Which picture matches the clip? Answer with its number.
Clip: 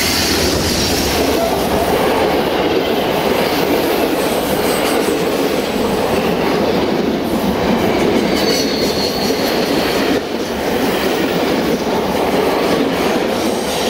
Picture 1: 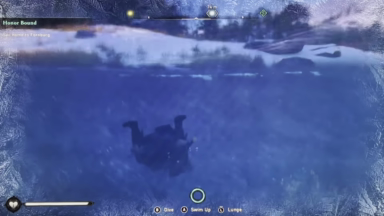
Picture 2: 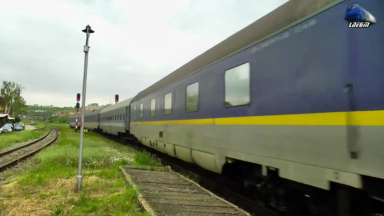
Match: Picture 2